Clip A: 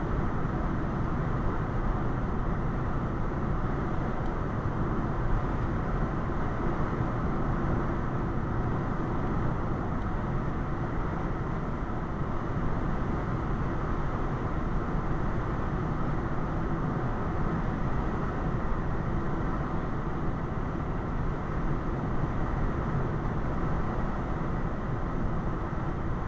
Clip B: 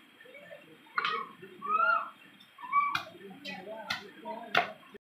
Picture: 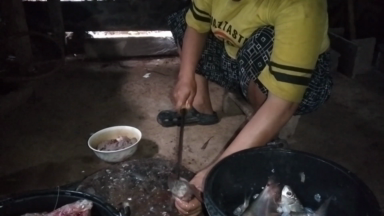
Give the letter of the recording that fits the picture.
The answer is B